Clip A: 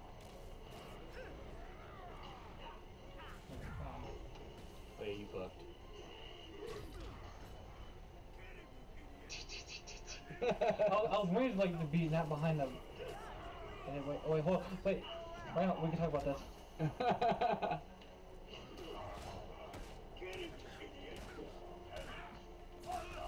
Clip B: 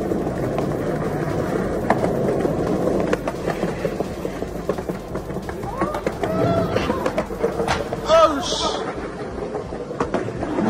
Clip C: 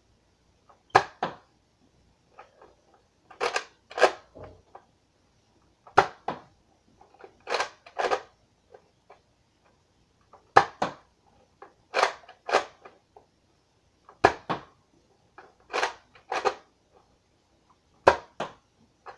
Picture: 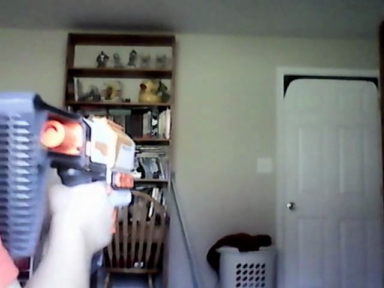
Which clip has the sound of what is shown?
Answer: C